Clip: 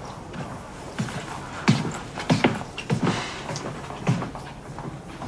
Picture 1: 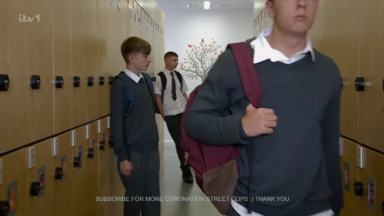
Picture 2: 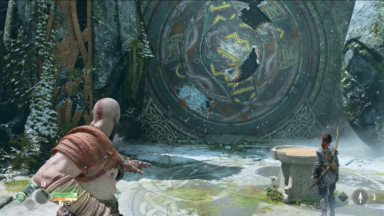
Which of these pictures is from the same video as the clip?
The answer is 1